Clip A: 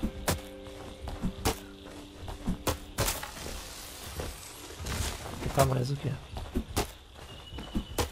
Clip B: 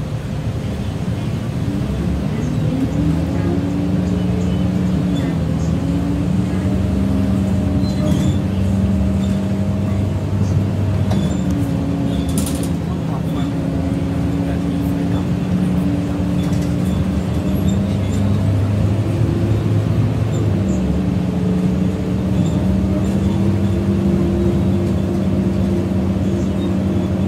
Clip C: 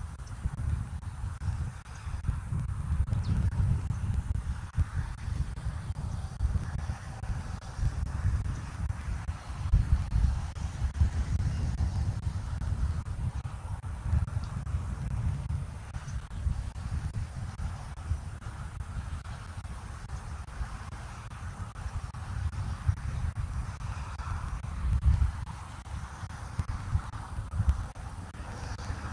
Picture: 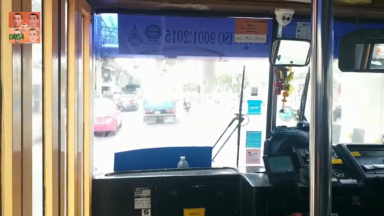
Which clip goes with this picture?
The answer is B